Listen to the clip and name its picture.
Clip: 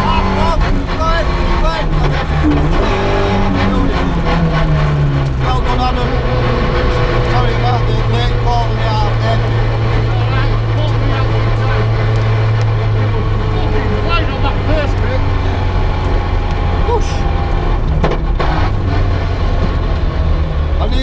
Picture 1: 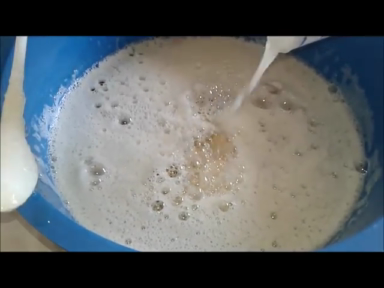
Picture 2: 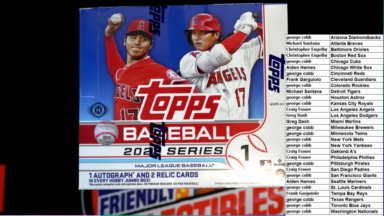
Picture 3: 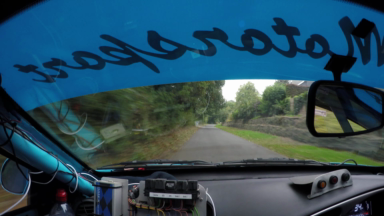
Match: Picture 3